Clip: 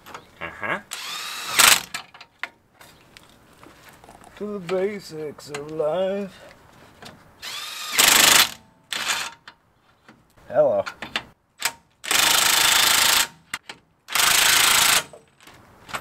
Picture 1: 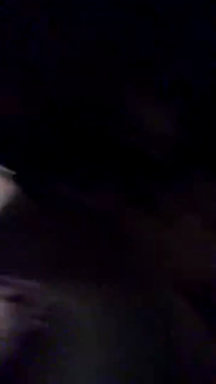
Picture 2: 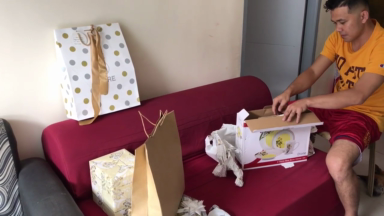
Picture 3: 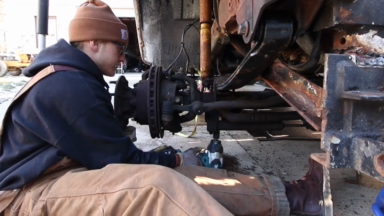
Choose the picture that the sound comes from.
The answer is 3